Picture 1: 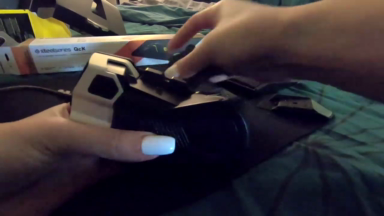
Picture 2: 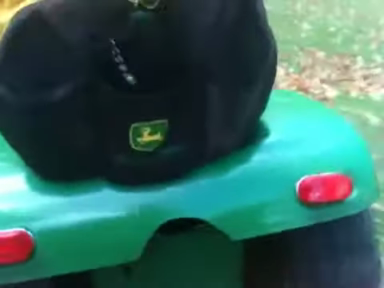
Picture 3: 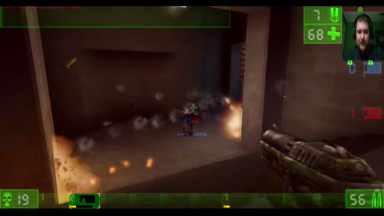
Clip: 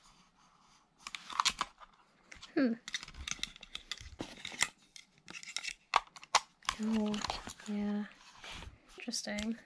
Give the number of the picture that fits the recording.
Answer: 1